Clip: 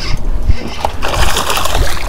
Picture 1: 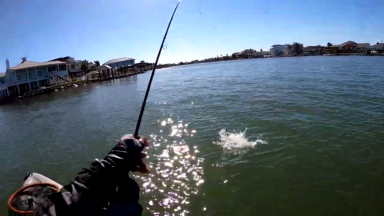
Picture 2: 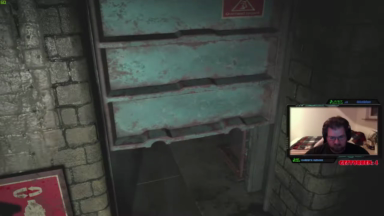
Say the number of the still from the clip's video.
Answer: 1